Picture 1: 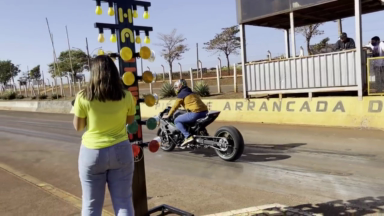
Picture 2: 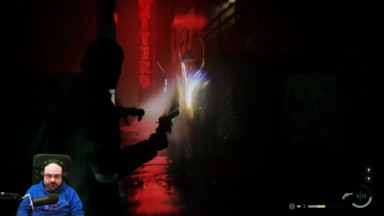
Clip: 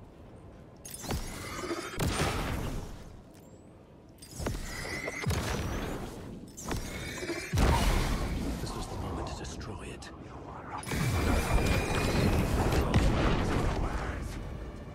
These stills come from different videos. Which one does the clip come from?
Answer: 2